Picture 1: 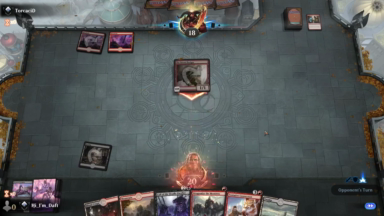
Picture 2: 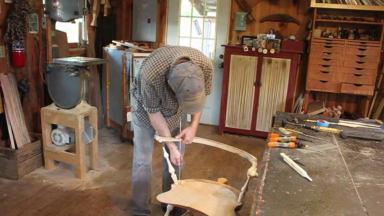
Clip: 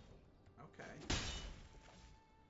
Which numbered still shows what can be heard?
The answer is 1